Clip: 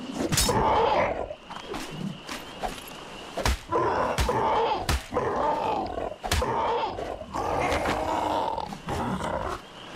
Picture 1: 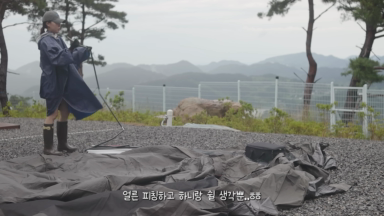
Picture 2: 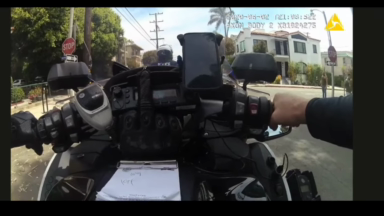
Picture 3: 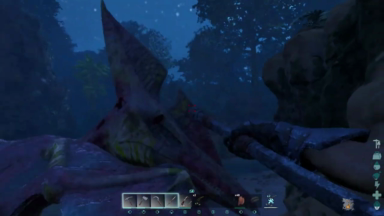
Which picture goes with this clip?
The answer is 3